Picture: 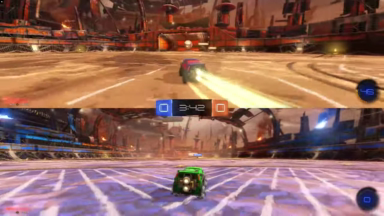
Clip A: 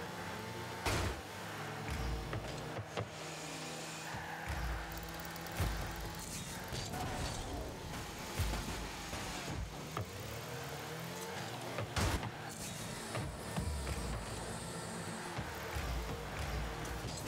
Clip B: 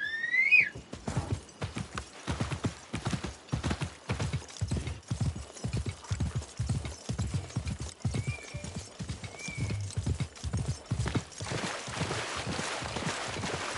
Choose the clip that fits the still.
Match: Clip A